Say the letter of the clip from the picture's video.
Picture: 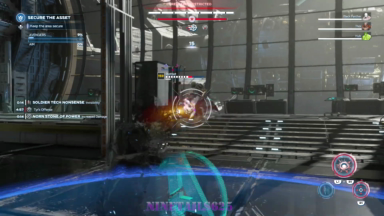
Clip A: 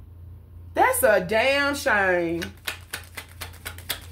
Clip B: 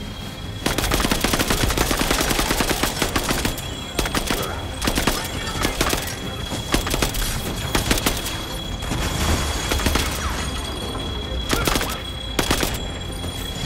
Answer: B